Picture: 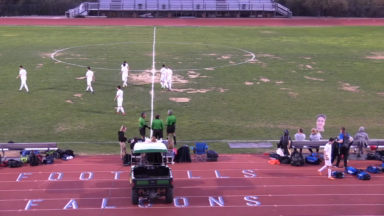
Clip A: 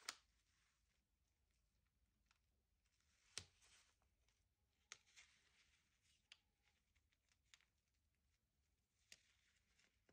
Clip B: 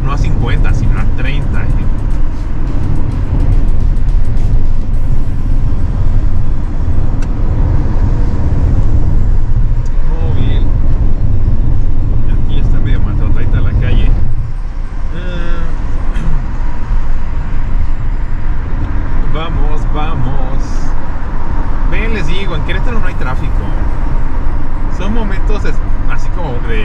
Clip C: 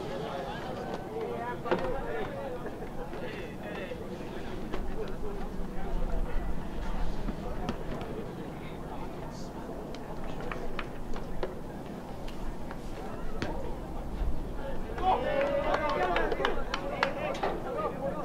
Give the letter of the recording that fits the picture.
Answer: C